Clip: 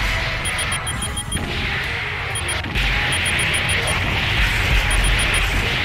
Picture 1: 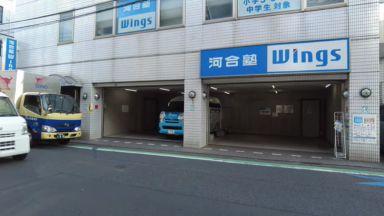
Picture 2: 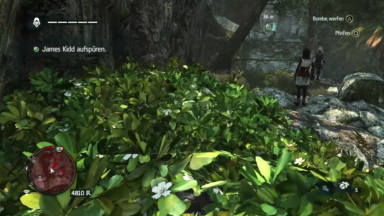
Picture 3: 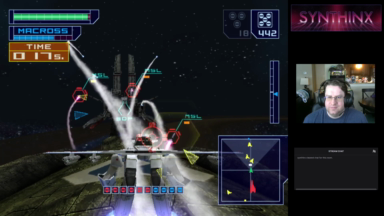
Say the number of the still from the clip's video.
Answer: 3